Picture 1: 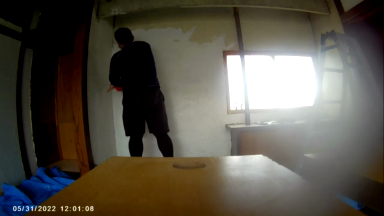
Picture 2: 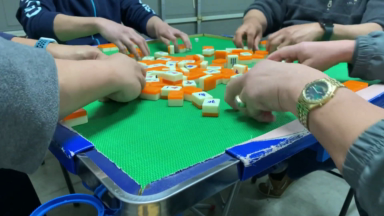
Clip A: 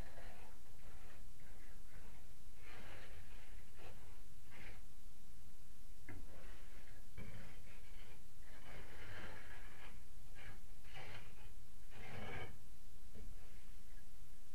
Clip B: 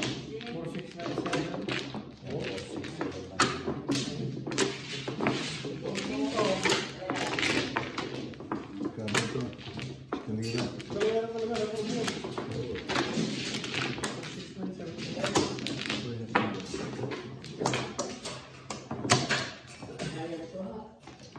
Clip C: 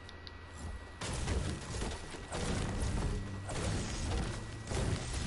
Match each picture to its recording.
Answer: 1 A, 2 B